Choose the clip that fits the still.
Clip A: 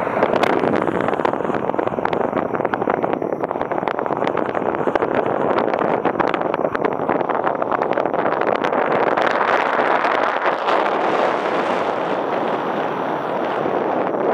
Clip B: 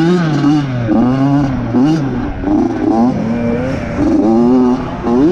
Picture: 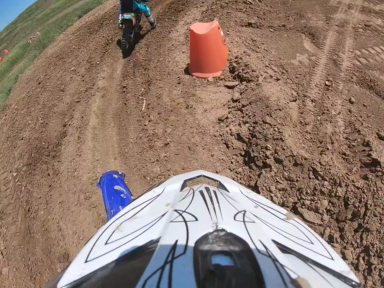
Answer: B